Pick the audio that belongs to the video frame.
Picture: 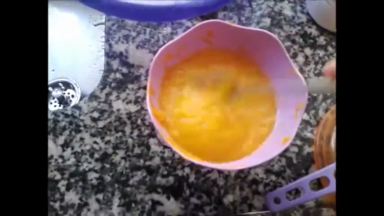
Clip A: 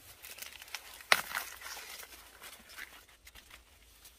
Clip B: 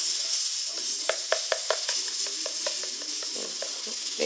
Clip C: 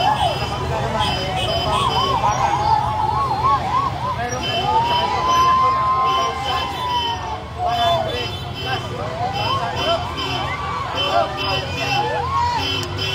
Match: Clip B